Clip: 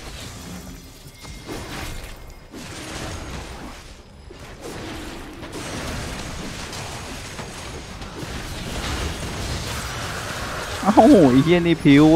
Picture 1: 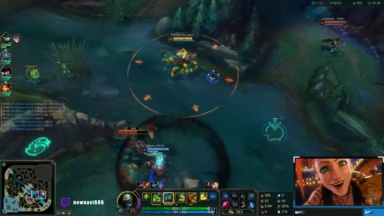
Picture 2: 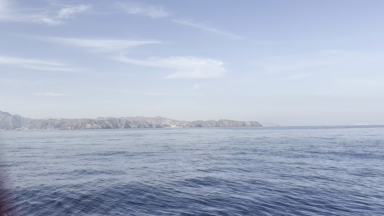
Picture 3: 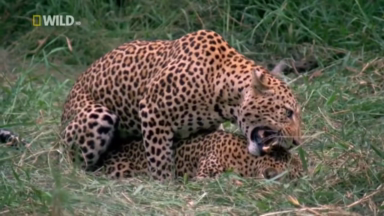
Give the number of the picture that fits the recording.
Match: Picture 1